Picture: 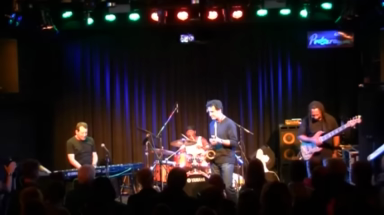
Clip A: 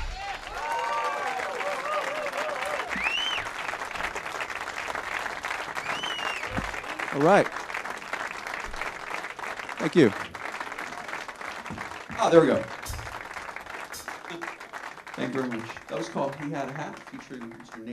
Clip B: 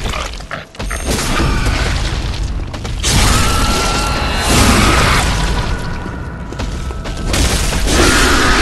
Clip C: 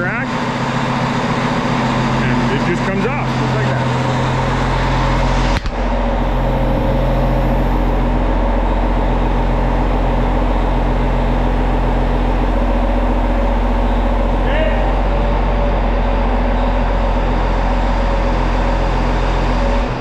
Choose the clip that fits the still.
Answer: A